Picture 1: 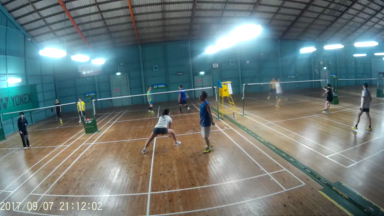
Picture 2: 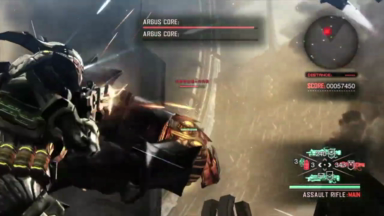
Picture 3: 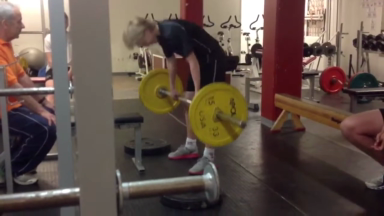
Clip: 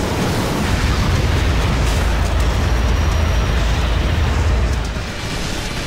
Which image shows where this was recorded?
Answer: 2